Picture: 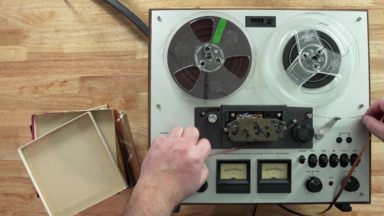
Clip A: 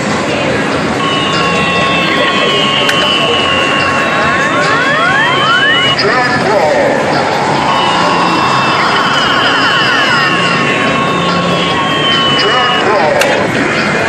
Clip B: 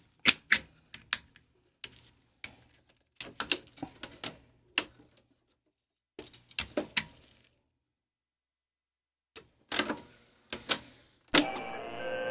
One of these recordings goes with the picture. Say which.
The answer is B